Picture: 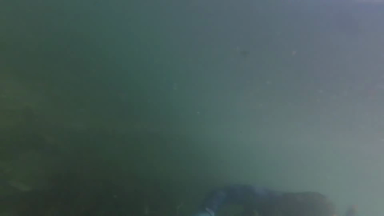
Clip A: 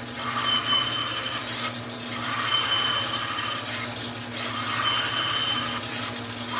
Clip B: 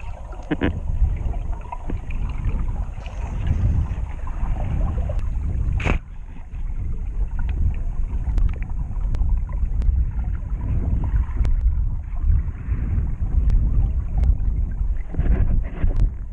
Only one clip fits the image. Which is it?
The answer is B